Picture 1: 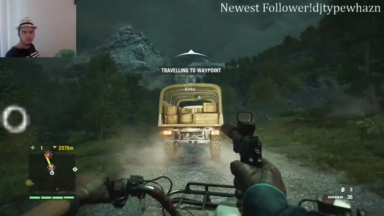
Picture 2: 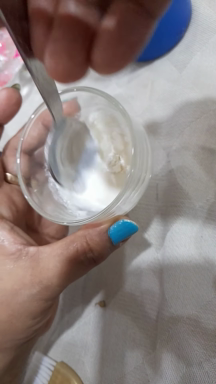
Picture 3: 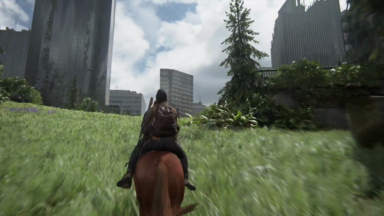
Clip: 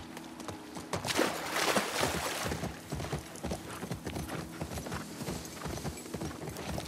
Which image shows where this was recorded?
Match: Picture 3